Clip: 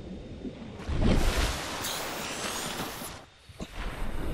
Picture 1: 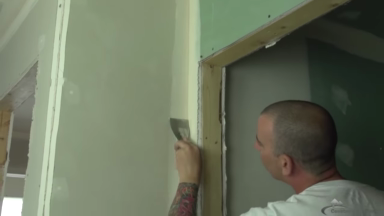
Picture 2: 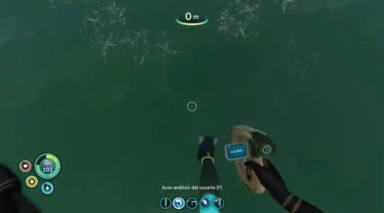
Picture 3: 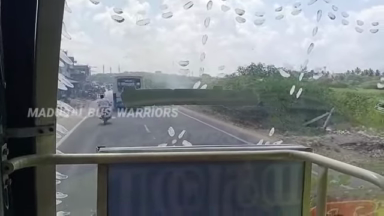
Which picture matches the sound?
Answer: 2